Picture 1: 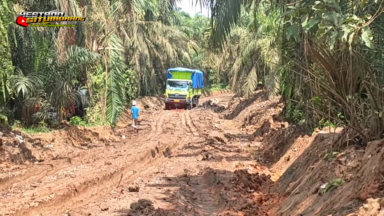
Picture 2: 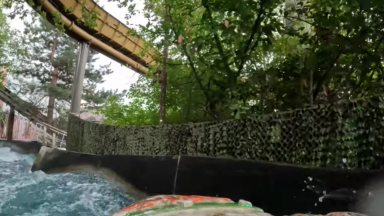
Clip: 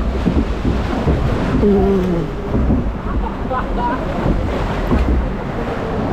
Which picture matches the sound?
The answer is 2